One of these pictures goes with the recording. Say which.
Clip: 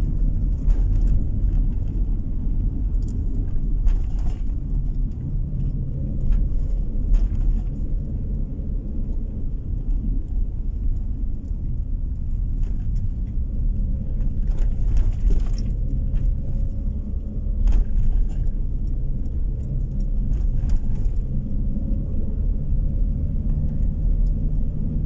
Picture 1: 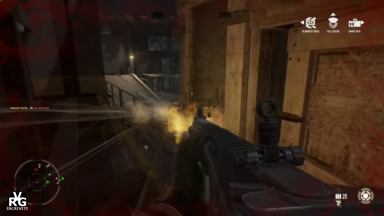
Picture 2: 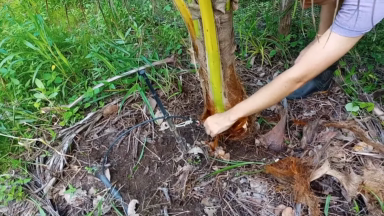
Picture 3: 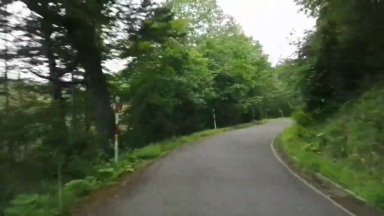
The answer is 3